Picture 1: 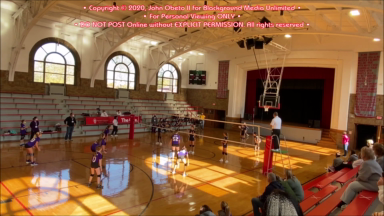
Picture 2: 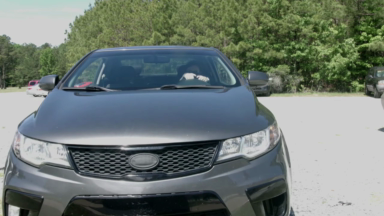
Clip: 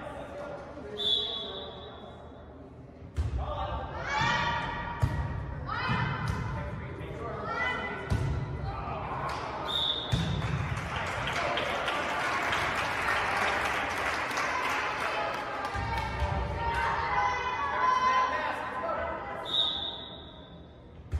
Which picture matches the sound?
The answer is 1